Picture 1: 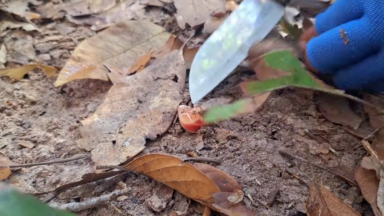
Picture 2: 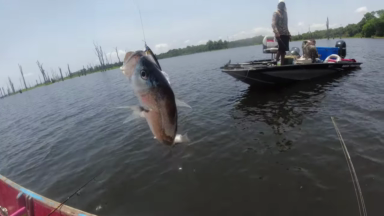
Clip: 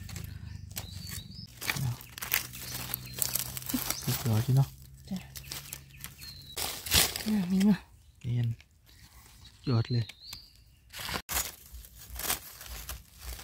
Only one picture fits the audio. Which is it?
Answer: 1